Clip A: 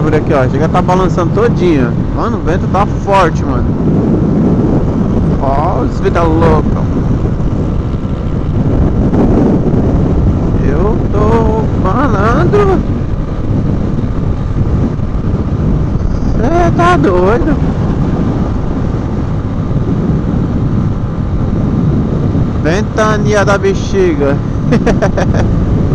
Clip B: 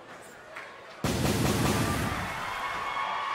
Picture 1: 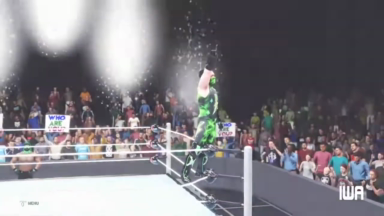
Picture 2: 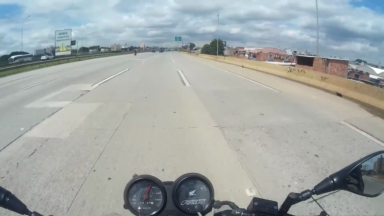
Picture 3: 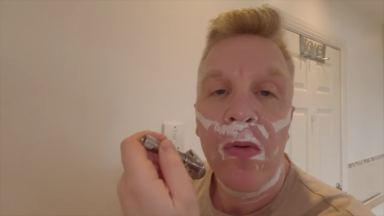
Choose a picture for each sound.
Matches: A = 2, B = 1